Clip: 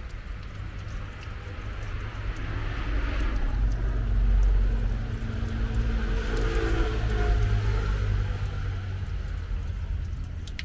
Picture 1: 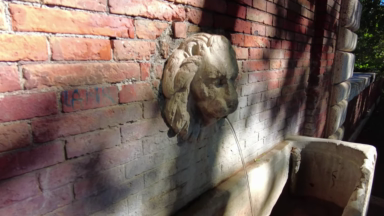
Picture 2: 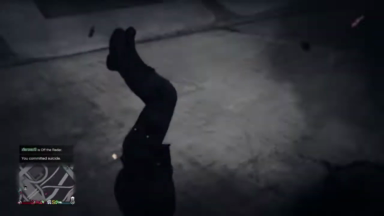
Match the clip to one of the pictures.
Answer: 1